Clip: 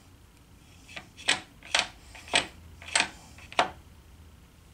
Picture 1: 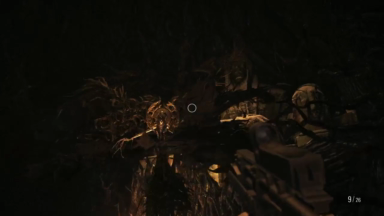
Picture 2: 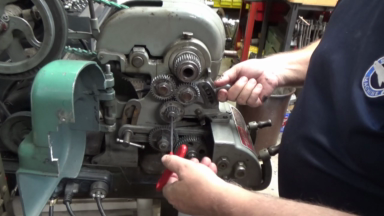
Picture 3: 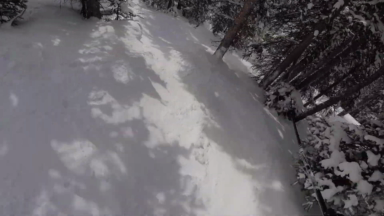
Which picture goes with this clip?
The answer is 2